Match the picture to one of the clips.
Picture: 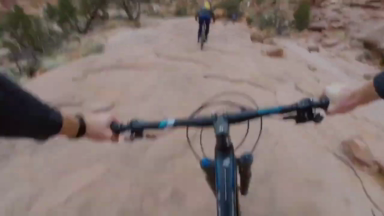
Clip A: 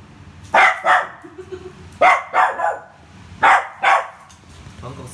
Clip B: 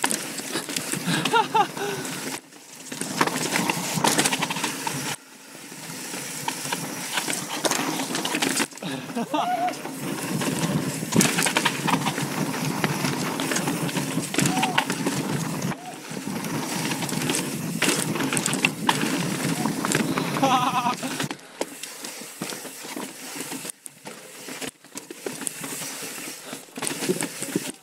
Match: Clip B